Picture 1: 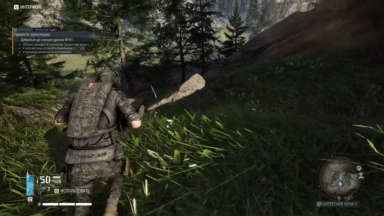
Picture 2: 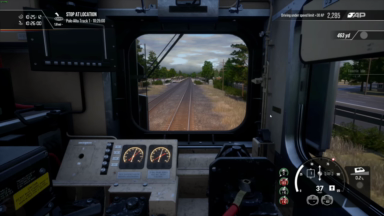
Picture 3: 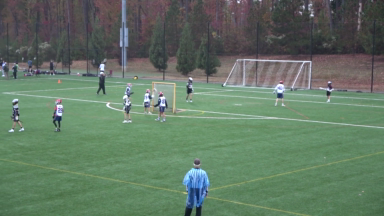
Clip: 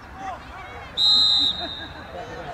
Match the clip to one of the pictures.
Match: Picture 3